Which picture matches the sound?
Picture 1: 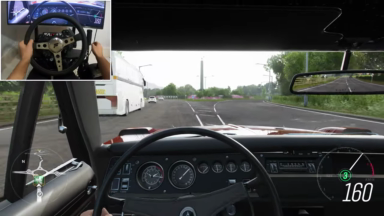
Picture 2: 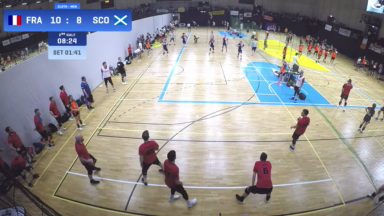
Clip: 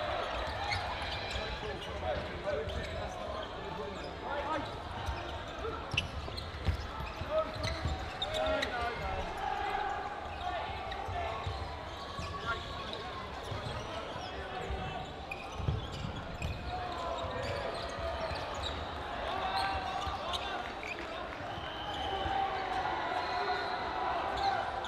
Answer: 2